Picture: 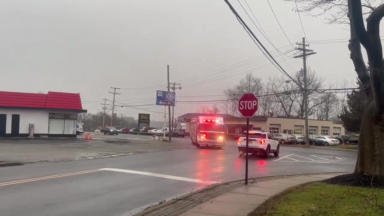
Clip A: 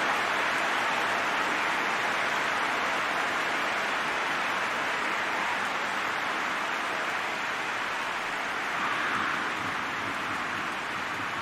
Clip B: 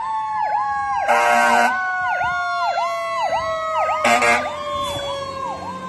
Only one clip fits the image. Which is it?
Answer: B